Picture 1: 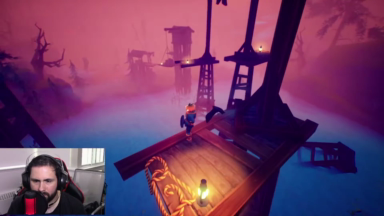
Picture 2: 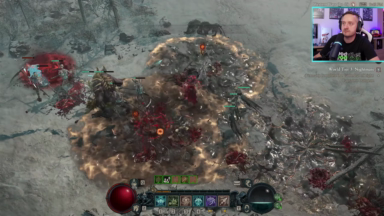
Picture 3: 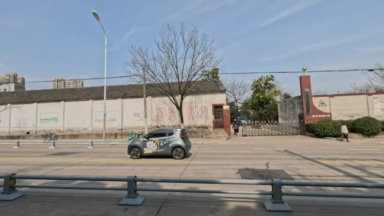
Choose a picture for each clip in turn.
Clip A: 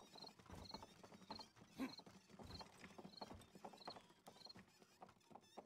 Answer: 1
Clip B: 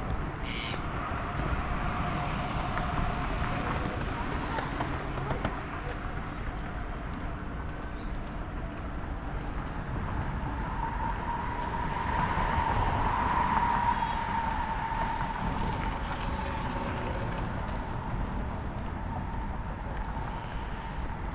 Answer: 3